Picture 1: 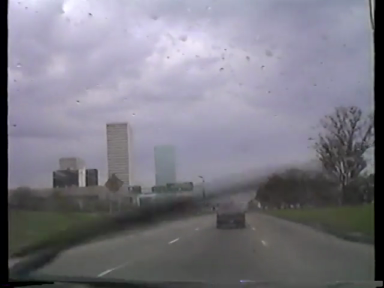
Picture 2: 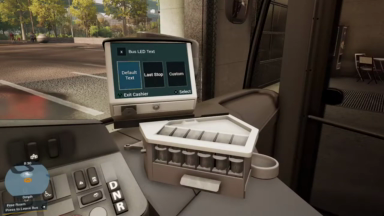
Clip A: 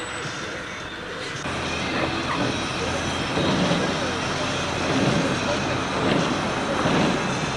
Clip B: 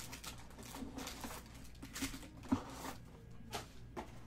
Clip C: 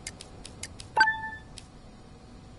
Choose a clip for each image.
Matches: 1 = A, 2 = C